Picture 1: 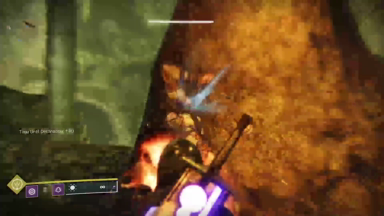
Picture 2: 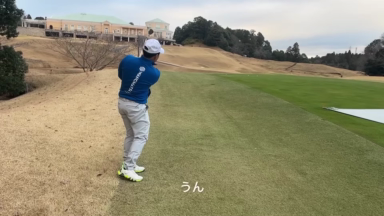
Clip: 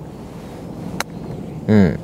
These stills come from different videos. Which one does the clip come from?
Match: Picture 2